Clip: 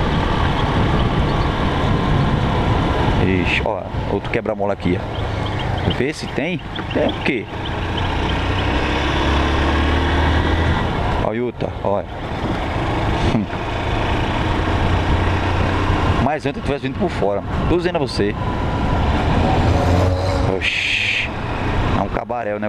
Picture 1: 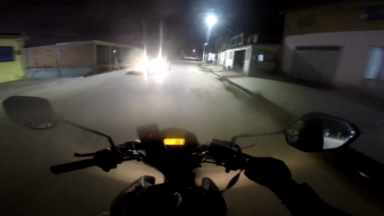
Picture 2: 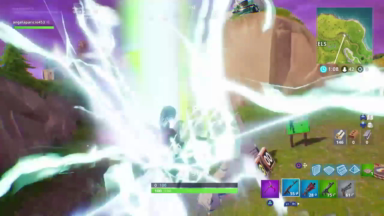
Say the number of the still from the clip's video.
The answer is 1